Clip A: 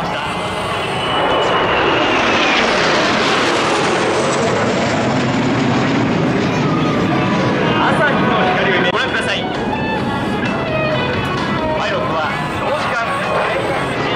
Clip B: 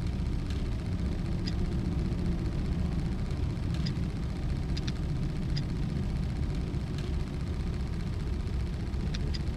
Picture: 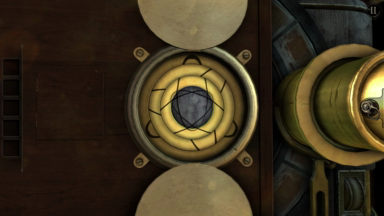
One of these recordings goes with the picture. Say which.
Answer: B